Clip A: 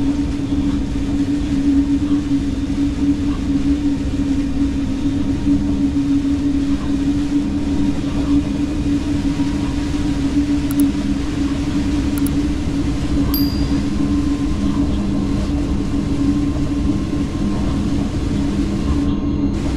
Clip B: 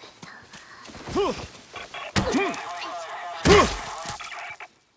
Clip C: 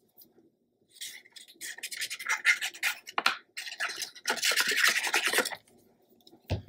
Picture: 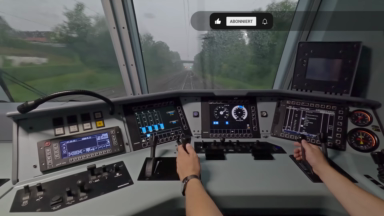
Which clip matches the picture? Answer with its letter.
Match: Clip A